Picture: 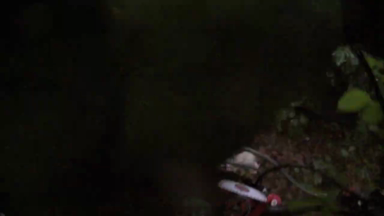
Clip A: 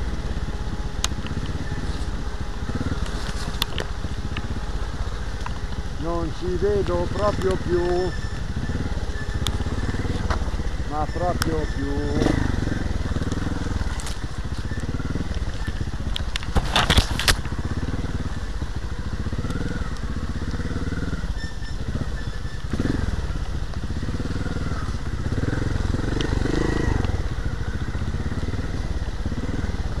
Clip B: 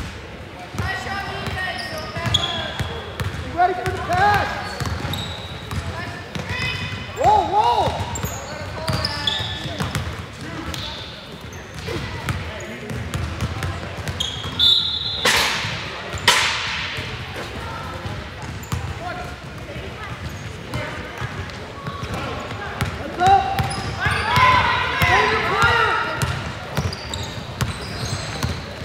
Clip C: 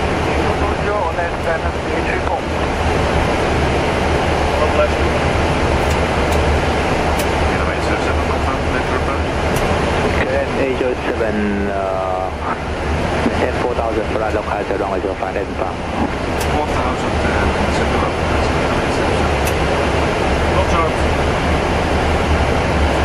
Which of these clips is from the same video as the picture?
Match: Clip A